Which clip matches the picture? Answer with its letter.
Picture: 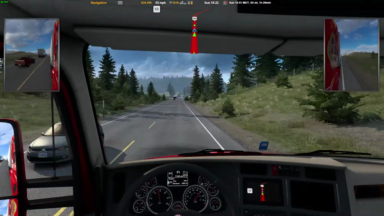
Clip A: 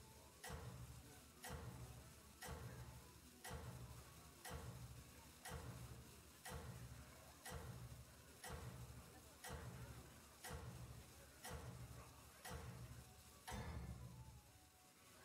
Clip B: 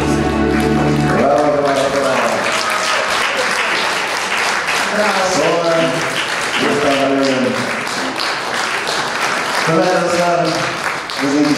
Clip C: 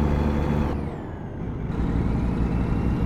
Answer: C